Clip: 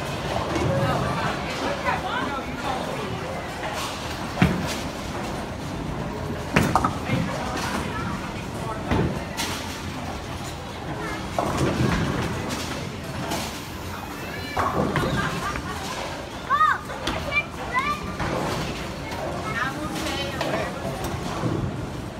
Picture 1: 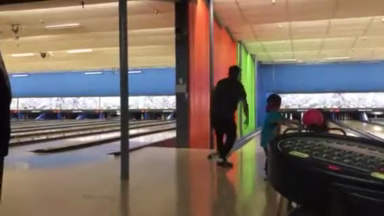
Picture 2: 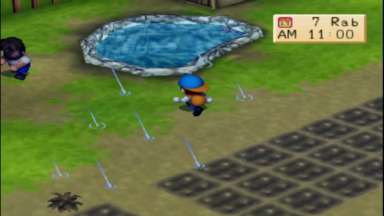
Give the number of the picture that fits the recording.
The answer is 1